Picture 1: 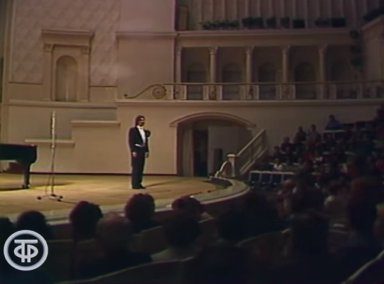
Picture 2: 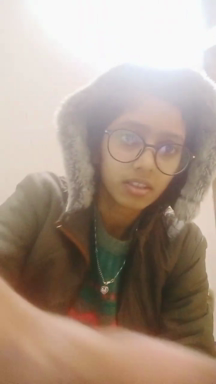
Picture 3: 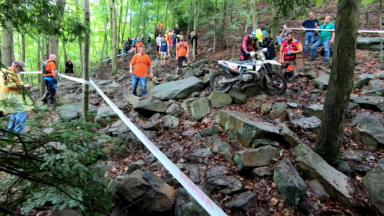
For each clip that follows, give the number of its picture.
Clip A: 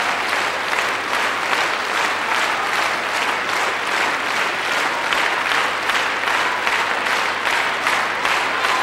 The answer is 1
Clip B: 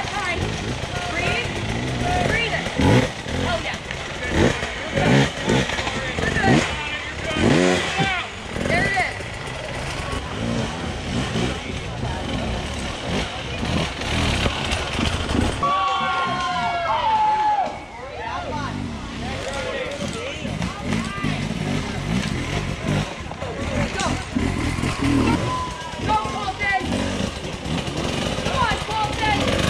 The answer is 3